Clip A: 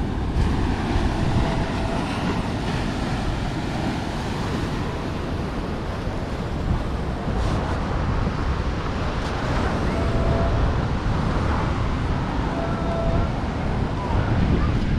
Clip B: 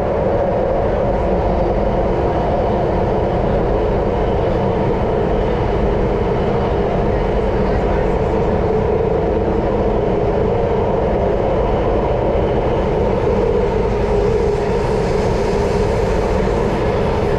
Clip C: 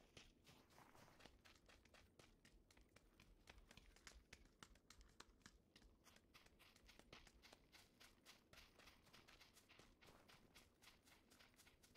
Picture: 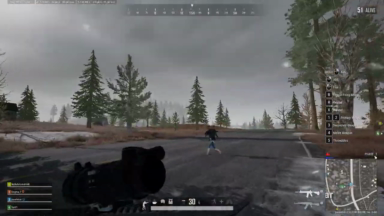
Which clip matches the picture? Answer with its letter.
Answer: C